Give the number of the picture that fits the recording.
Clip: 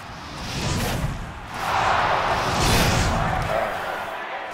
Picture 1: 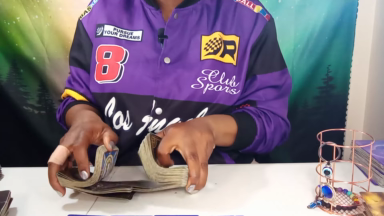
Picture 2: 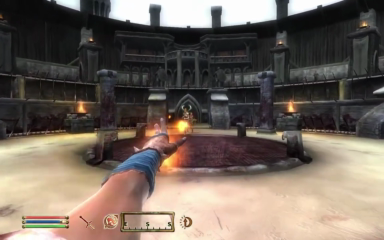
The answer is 2